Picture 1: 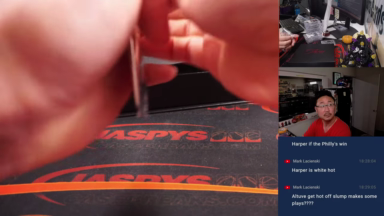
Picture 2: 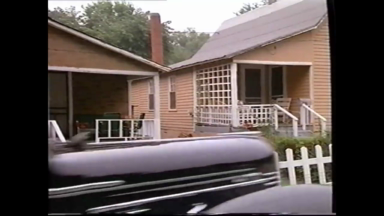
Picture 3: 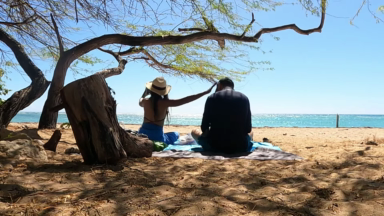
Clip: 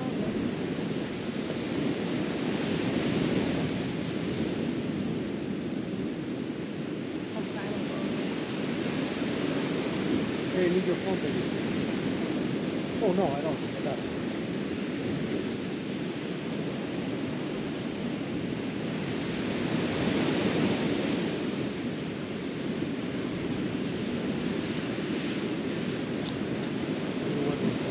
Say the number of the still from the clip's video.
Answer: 3